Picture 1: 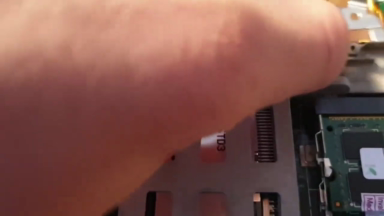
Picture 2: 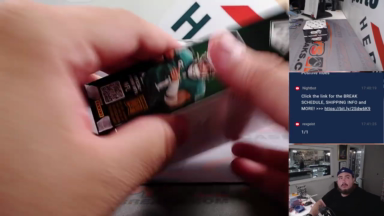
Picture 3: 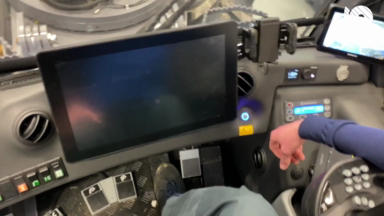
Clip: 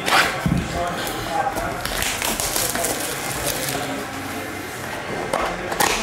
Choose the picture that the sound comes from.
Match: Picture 2